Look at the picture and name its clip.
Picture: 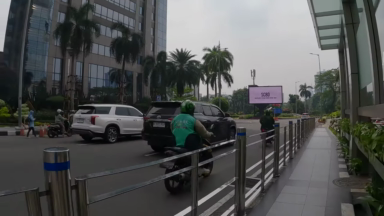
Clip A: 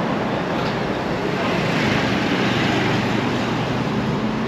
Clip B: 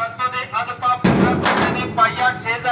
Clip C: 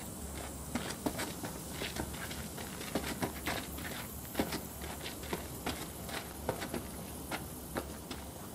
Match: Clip A